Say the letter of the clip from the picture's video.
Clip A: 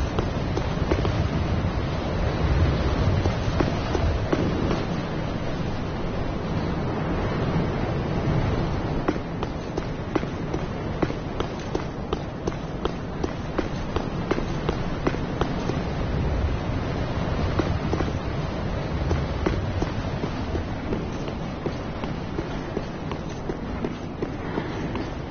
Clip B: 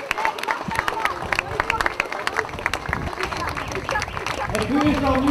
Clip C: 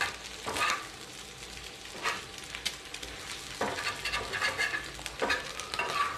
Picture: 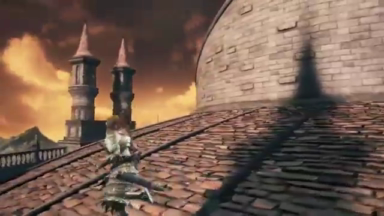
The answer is A